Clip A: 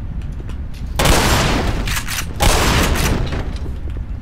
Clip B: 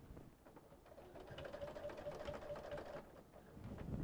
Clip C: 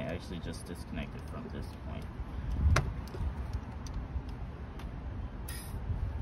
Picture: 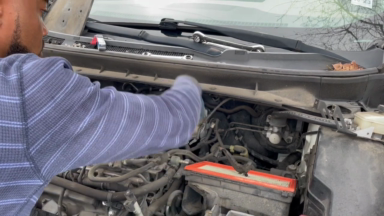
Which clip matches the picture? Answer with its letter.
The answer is C